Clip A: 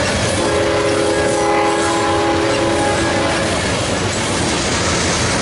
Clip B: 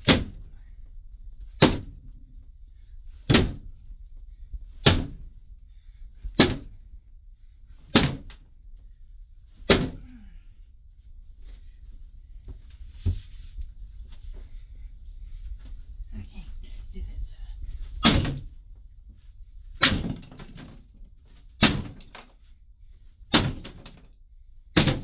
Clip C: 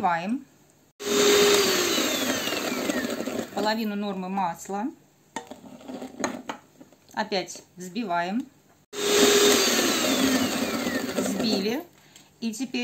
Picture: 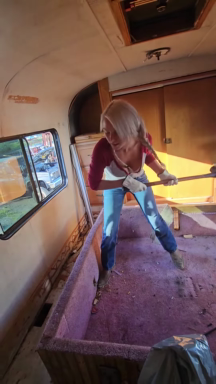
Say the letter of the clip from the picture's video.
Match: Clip B